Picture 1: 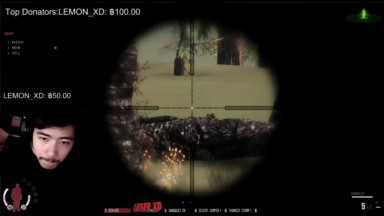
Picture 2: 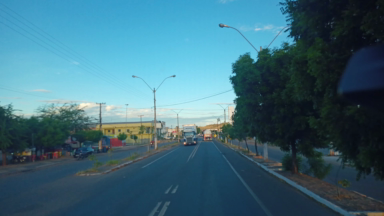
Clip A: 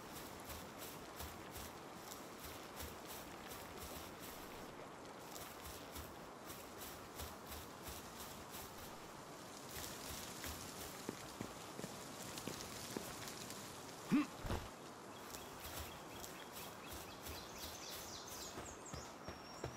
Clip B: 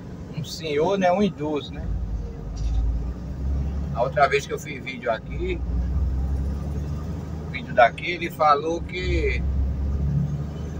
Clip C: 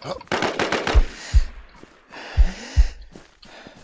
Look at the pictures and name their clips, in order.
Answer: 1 C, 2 B